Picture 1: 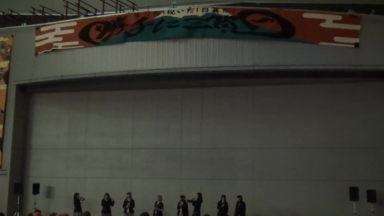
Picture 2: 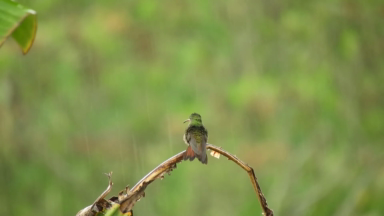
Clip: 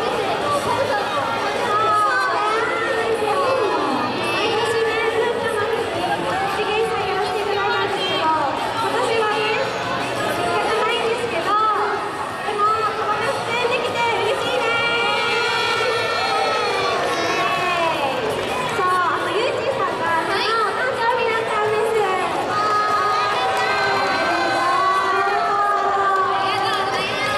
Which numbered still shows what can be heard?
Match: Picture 1